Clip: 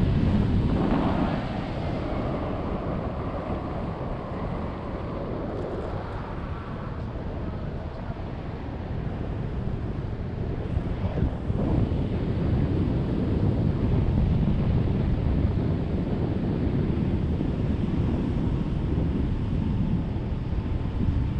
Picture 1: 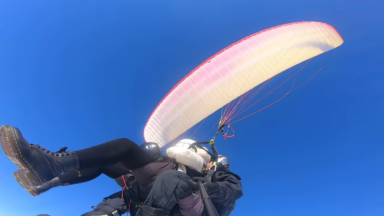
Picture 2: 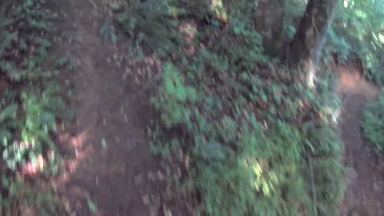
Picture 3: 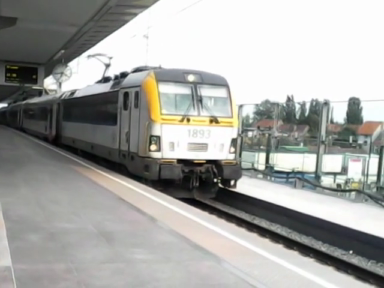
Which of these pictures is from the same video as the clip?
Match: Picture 1